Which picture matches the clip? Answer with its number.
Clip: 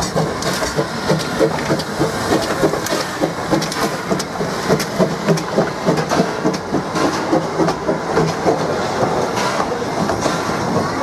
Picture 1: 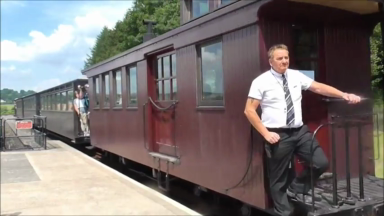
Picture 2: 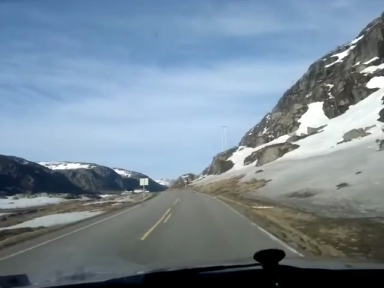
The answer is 1